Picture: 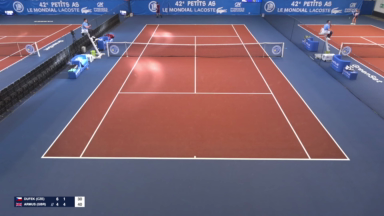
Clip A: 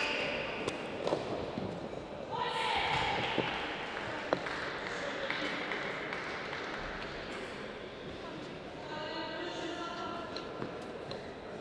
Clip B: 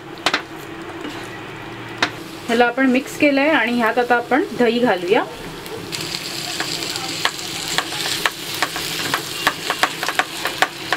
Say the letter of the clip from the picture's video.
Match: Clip A